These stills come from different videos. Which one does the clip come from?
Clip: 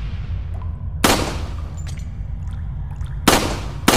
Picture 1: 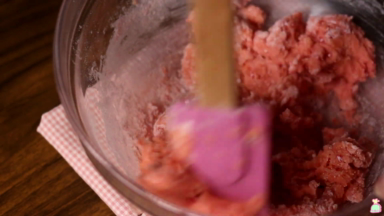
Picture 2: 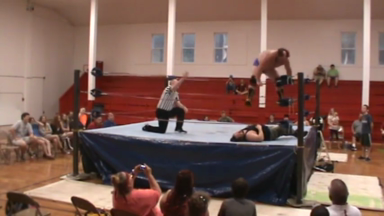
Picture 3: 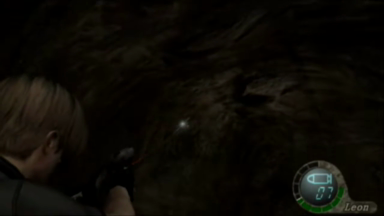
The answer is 3